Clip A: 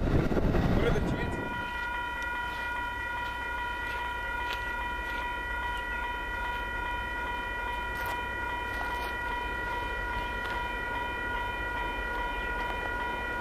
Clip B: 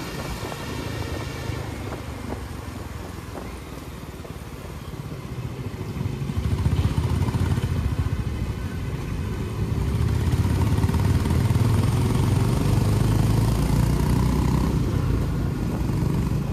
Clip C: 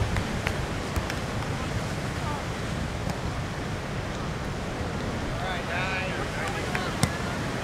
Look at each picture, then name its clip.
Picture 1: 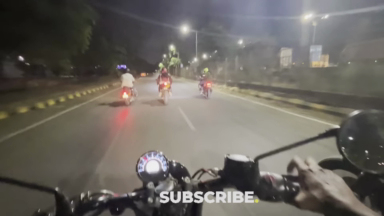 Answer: B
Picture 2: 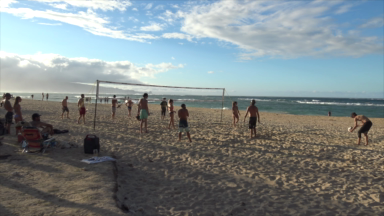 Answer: C